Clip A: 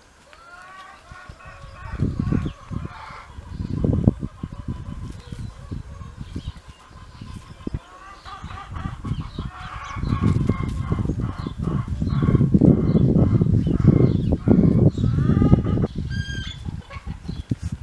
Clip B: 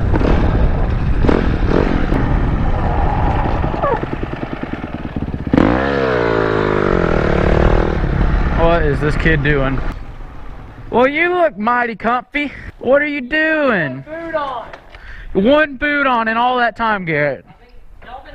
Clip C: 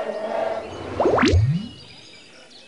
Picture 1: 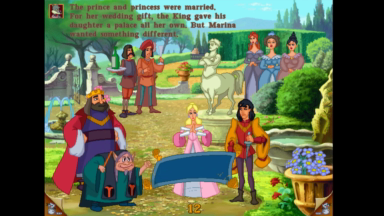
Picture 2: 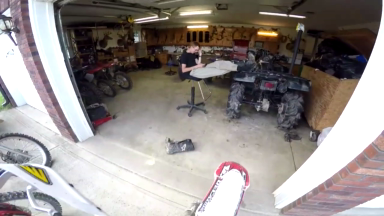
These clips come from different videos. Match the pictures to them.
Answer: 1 C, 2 B